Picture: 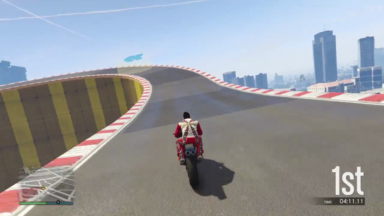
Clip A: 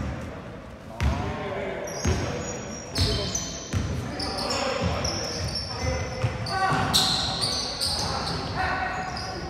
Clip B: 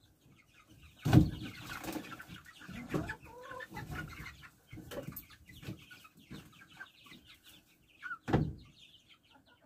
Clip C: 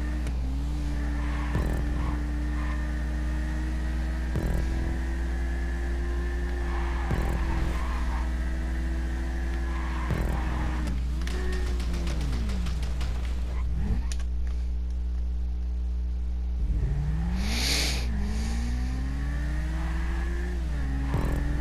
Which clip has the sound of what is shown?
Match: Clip C